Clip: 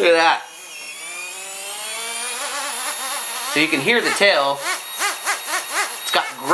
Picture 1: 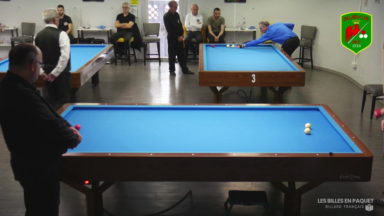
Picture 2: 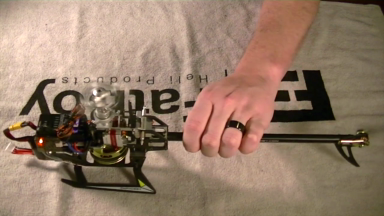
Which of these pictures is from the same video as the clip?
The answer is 2